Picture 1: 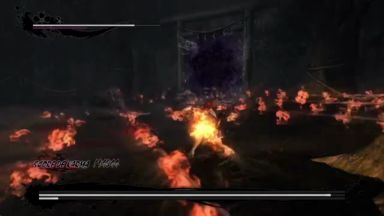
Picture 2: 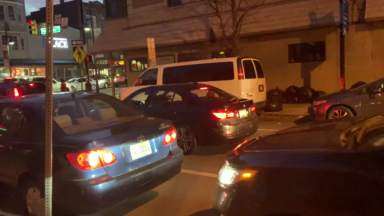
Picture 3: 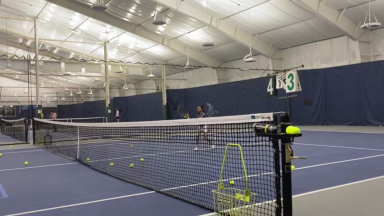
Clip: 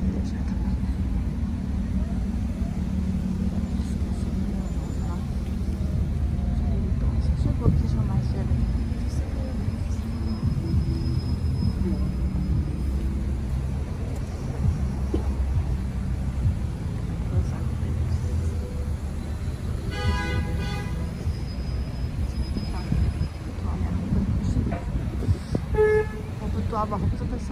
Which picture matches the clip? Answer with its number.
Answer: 2